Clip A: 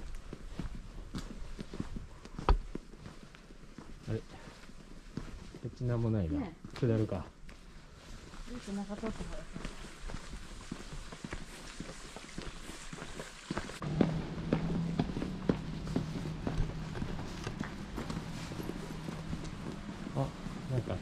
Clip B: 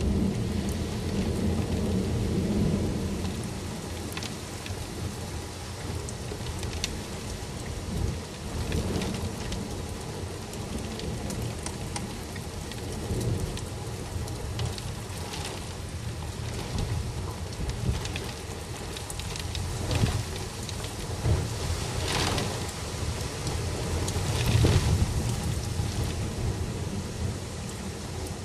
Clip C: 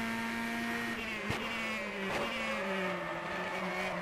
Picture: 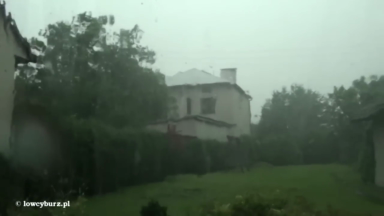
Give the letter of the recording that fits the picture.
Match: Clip B